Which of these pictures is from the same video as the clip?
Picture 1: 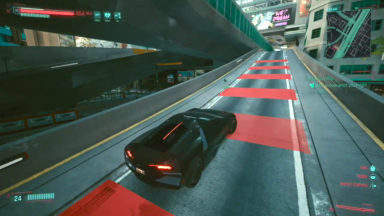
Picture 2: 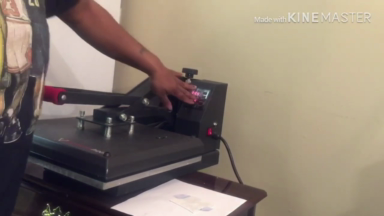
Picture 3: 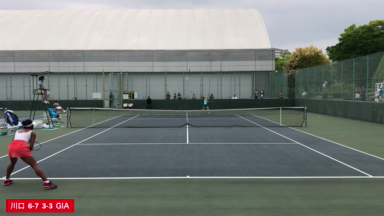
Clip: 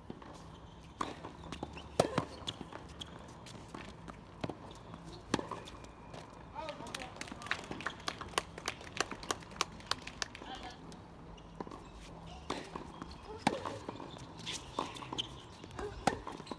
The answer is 3